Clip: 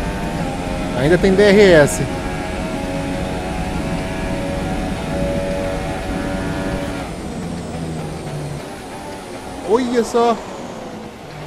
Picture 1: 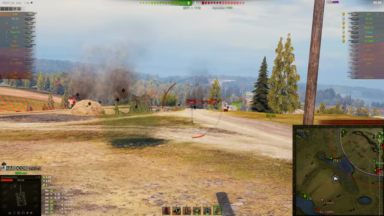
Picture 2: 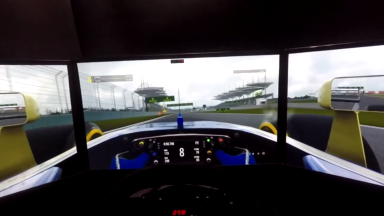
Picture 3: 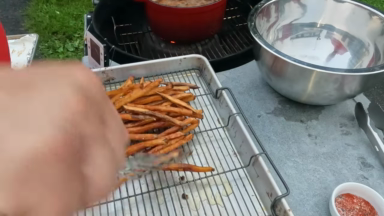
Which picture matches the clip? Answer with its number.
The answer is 2